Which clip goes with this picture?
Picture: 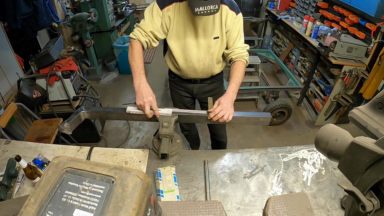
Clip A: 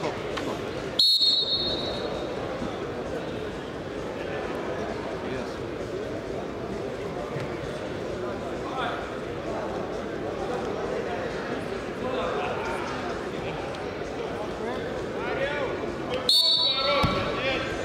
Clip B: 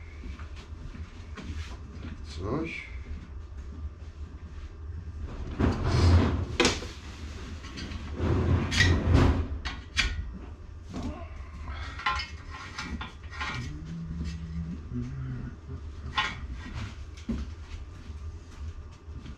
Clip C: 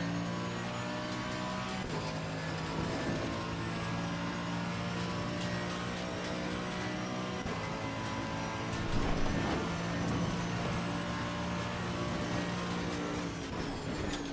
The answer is B